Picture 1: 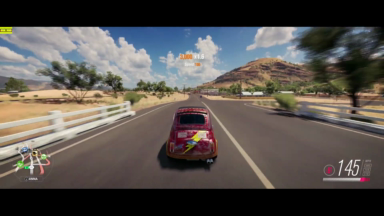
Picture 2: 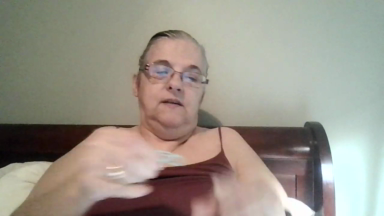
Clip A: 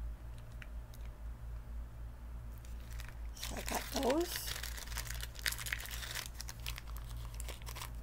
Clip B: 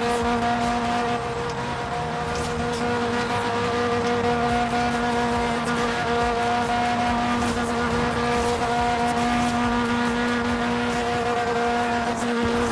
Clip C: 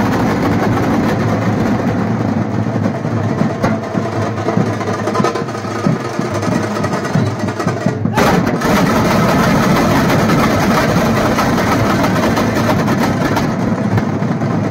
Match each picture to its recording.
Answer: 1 B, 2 A